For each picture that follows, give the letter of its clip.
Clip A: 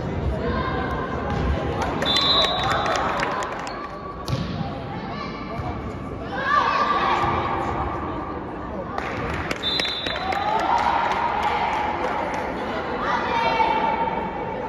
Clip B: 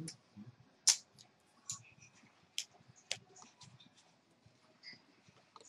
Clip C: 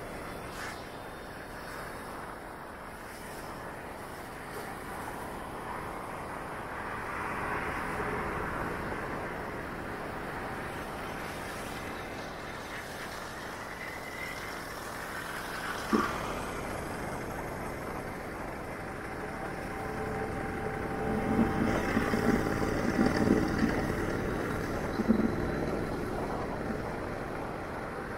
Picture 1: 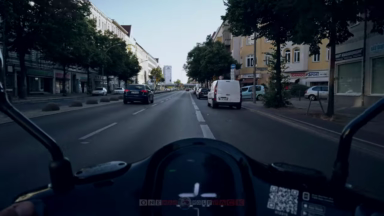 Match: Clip C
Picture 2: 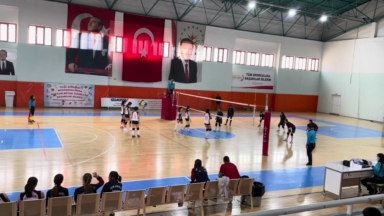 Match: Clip A